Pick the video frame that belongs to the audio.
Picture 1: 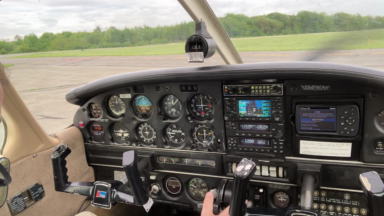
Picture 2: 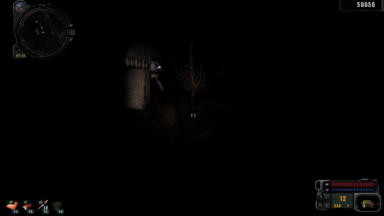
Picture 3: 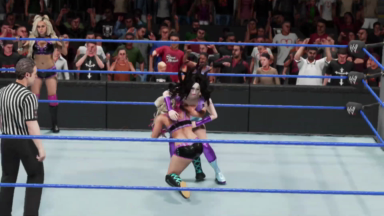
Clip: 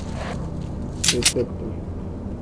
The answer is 2